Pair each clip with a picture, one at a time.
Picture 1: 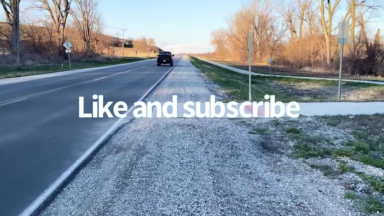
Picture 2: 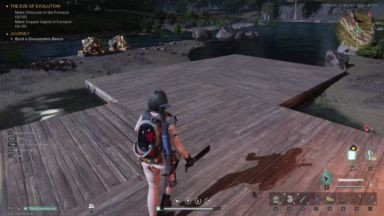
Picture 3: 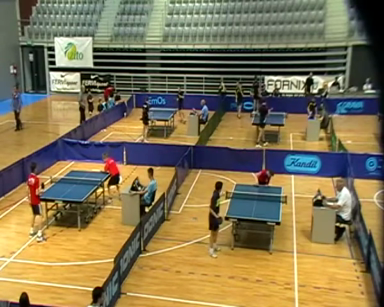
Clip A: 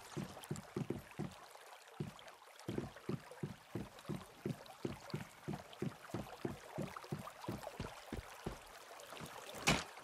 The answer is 2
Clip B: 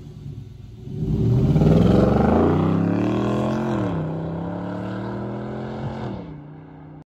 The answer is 1